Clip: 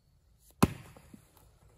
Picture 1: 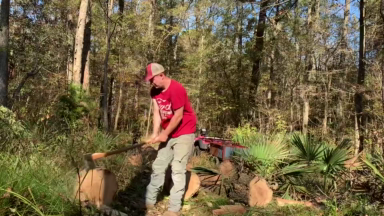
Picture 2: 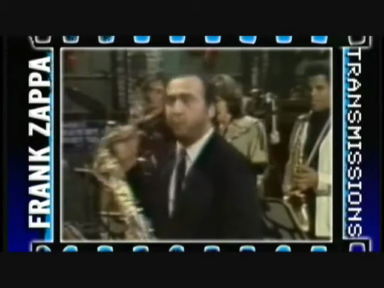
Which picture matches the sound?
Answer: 1